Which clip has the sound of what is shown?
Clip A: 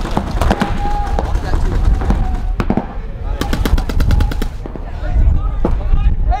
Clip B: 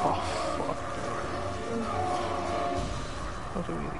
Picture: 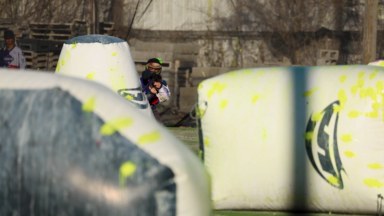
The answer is A